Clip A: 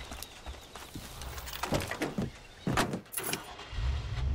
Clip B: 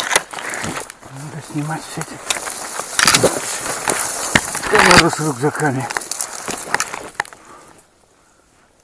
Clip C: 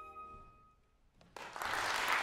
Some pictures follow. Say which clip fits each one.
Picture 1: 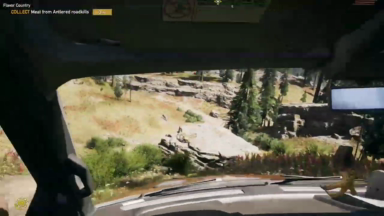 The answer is A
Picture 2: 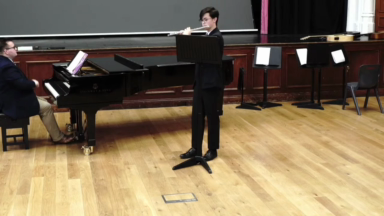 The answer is C